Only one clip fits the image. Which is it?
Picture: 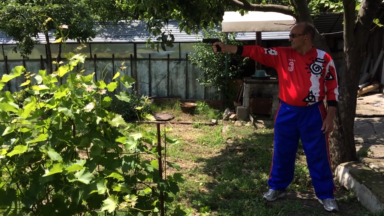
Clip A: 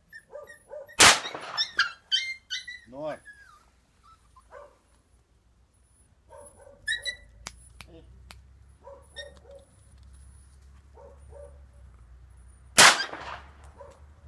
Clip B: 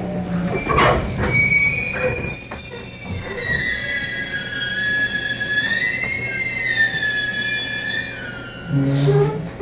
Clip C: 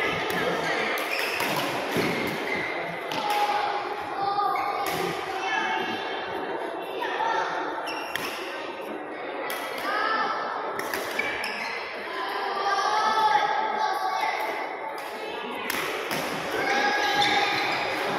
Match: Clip A